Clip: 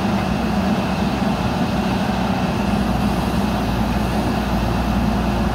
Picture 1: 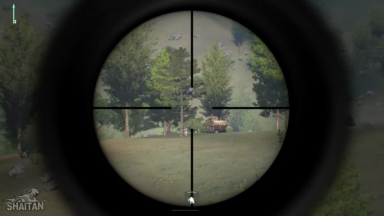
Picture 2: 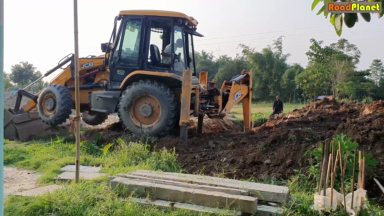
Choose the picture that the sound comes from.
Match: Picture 2